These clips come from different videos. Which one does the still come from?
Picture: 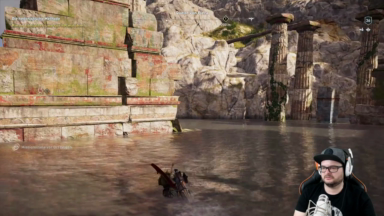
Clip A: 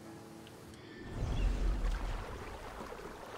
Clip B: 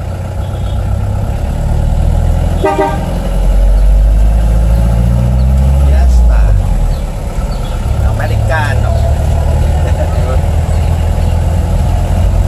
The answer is A